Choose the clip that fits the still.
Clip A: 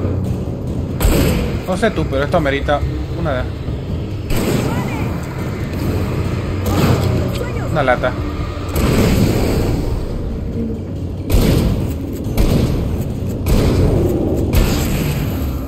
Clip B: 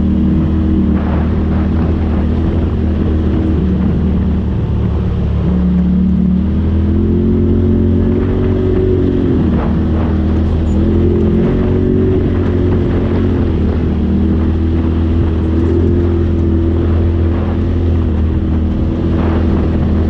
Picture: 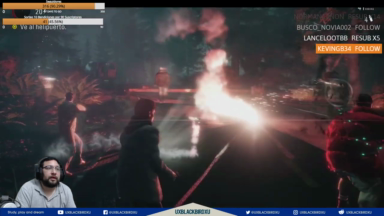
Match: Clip A